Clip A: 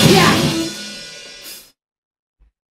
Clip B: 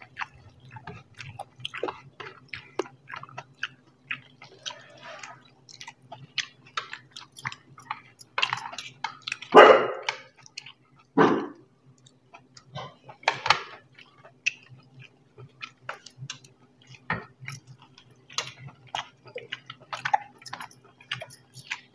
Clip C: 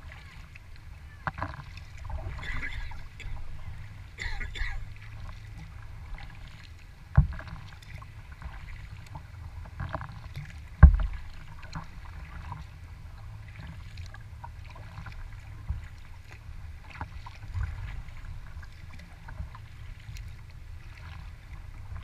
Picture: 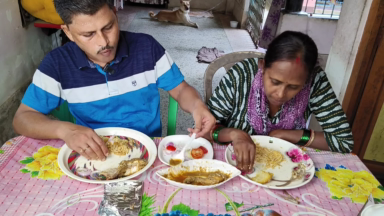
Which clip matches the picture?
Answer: B